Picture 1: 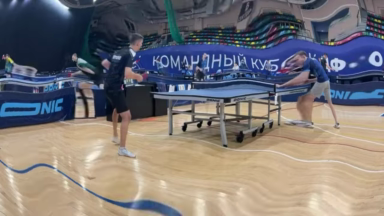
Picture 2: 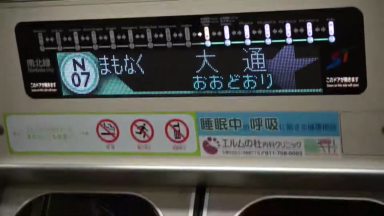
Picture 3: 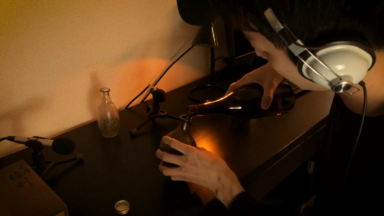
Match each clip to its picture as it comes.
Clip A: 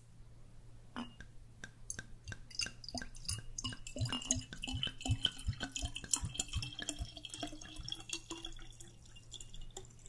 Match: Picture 3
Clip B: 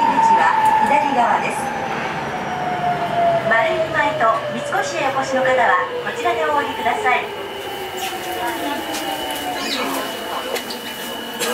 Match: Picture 2